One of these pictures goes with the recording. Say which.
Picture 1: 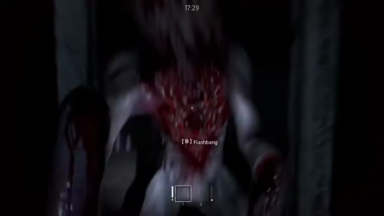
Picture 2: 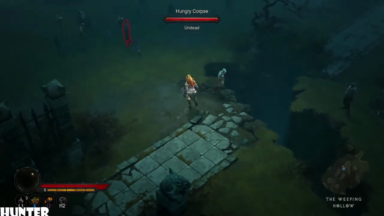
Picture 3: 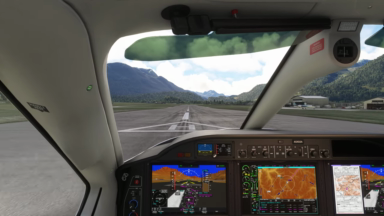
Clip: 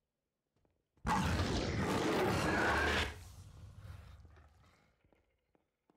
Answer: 1